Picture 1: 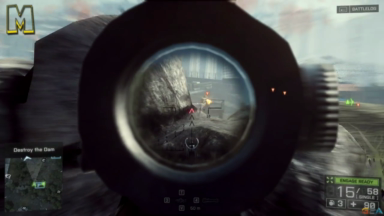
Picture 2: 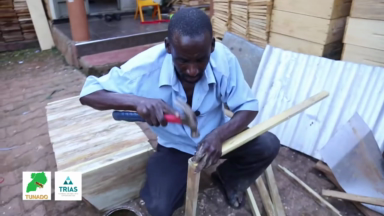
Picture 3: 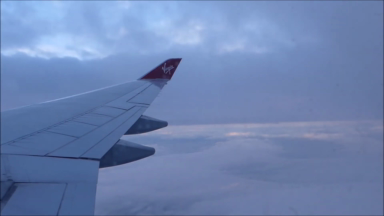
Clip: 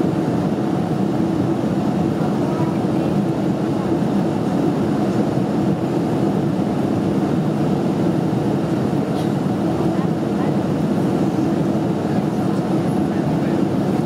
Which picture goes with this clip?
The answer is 3